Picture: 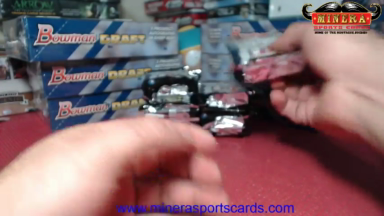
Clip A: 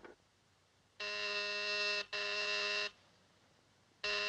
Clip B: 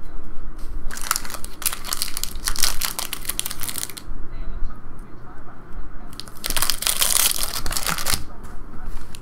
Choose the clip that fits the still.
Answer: B